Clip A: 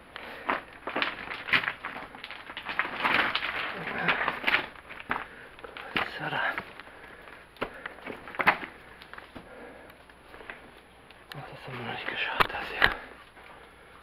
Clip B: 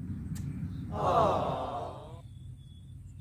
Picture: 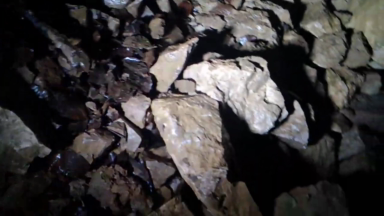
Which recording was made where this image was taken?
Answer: A